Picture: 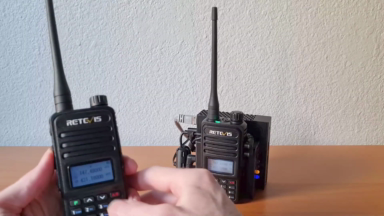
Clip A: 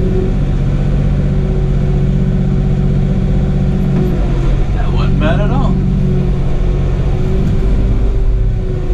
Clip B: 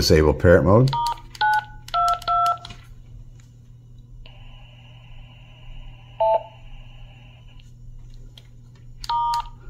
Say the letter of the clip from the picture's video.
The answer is B